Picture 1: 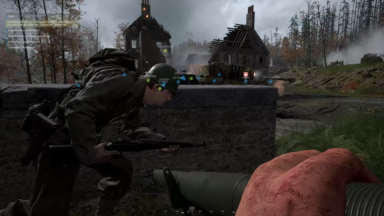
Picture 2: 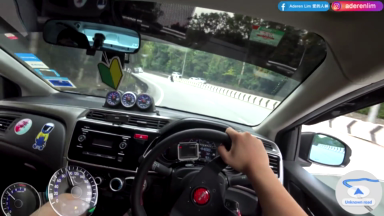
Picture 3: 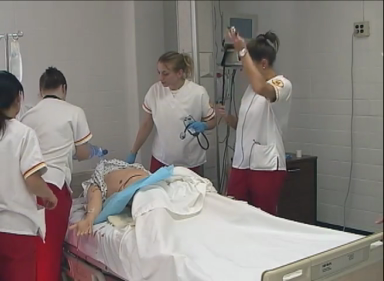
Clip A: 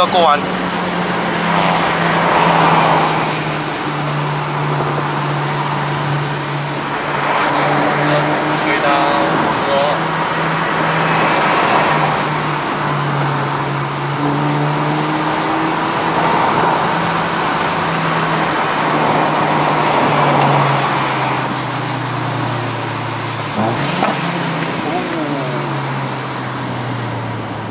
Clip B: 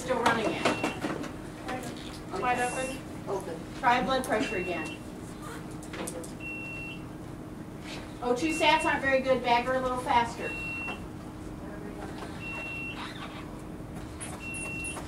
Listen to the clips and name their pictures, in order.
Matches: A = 2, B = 3